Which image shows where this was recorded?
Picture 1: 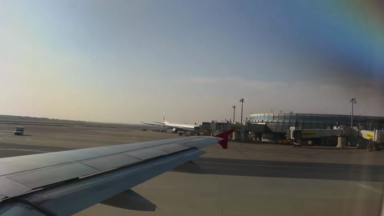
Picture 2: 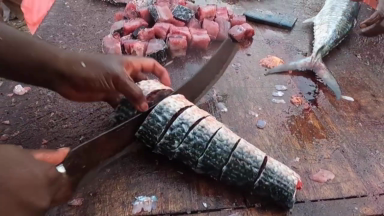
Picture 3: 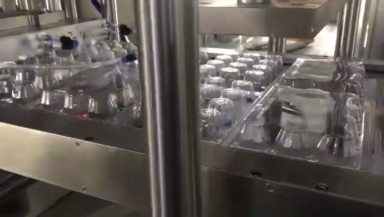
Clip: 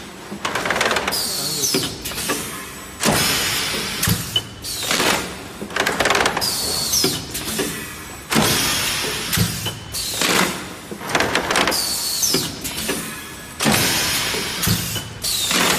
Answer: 3